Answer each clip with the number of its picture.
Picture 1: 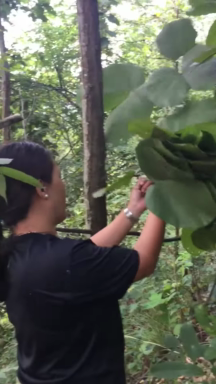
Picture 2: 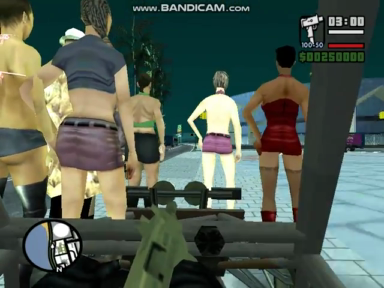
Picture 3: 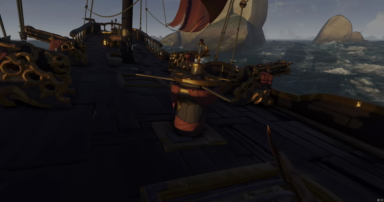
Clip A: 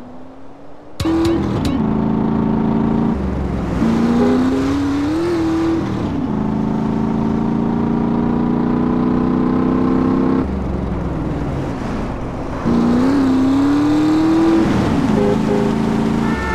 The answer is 2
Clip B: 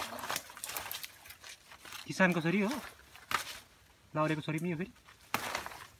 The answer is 1